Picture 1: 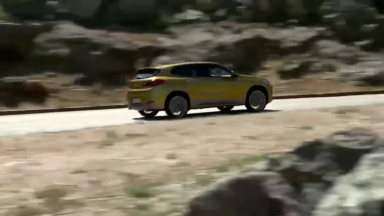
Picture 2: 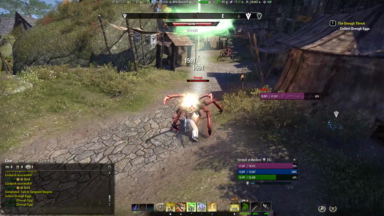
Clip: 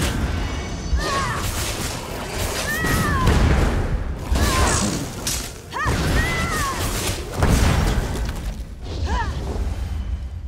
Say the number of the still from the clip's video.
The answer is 2